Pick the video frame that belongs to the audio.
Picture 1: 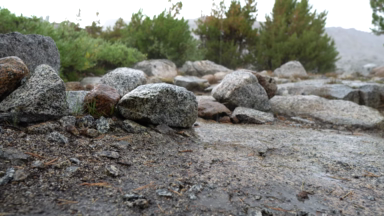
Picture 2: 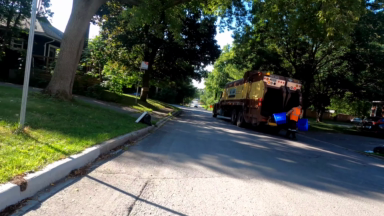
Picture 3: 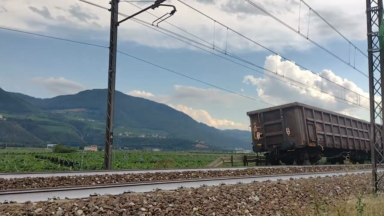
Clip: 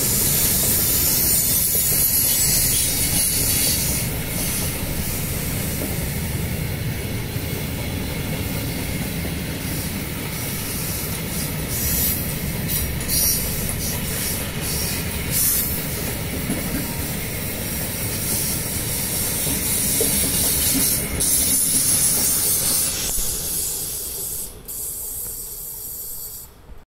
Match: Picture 3